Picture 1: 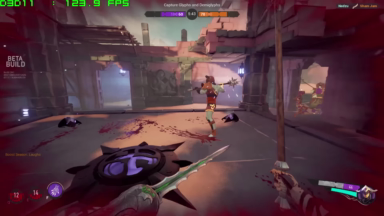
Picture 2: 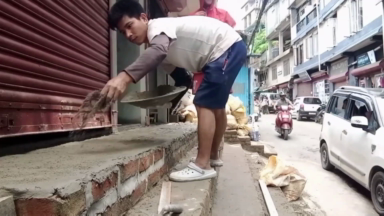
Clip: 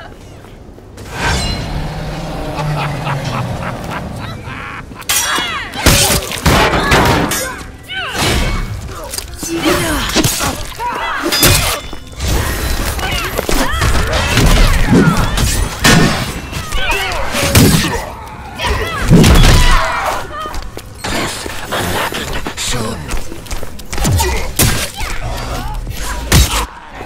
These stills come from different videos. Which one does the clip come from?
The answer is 1